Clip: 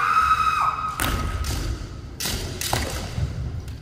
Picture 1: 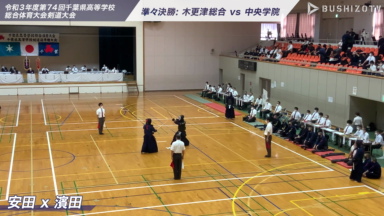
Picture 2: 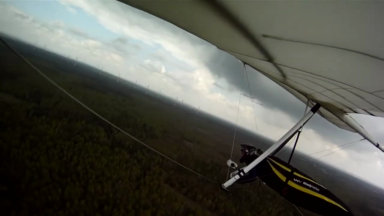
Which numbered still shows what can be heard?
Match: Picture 1